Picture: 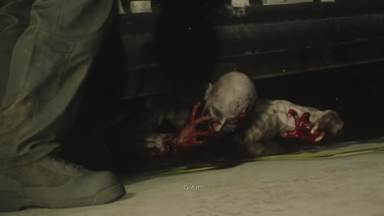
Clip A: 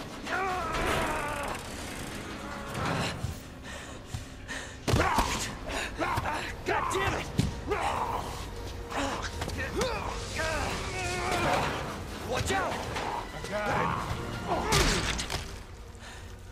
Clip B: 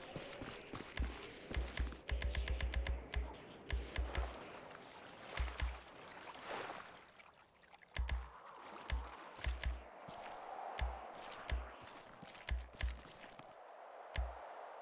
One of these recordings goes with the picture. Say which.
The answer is A